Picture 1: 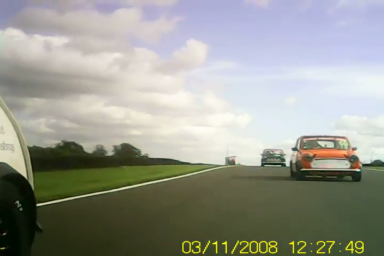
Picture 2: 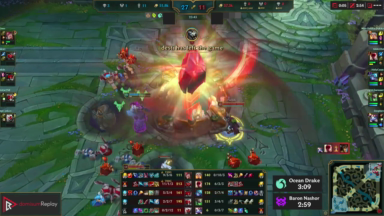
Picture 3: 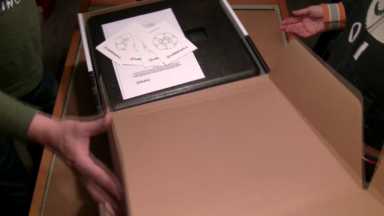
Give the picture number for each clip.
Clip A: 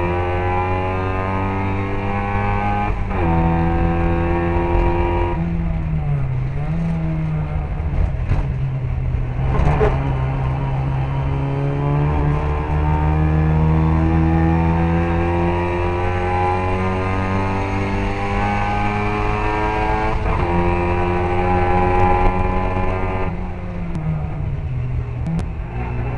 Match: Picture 1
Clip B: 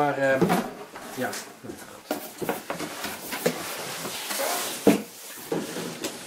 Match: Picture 3